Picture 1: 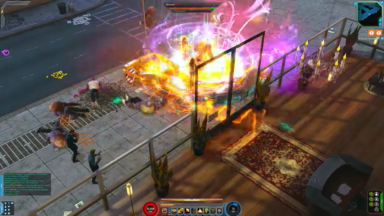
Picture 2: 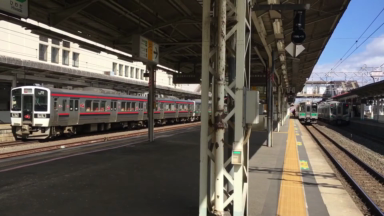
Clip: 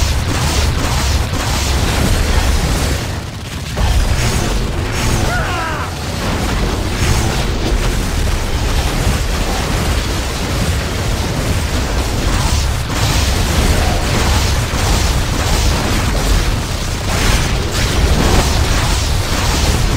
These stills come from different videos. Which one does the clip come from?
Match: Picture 1